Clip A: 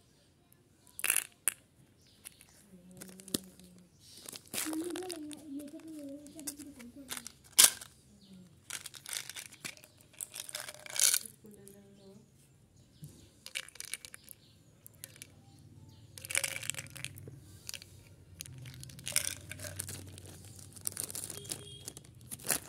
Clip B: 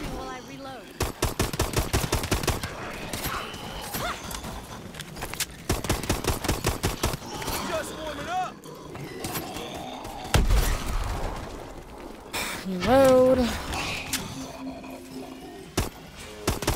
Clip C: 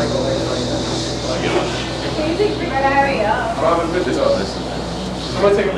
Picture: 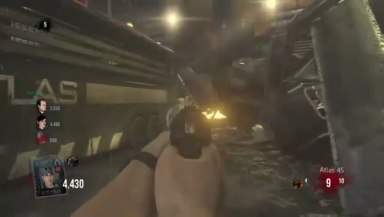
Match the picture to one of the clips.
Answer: B